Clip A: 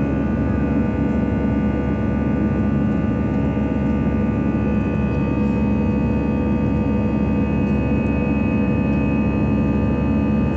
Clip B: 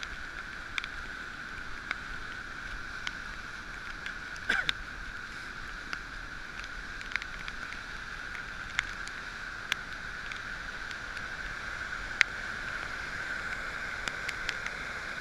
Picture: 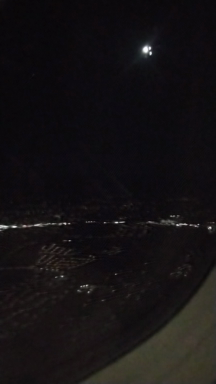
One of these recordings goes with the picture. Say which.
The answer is A